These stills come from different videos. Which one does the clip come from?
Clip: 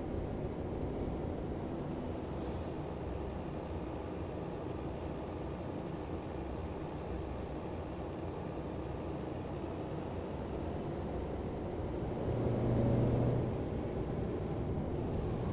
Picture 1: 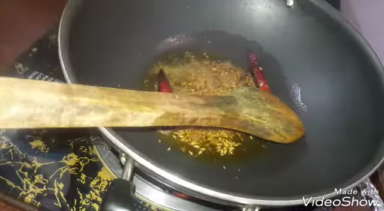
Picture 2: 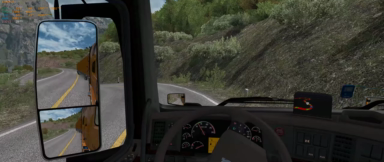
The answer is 2